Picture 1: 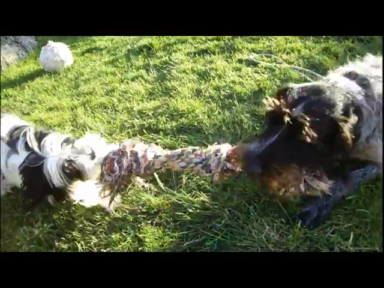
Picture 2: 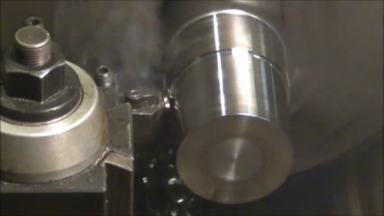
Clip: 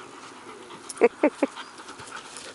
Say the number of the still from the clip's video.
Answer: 1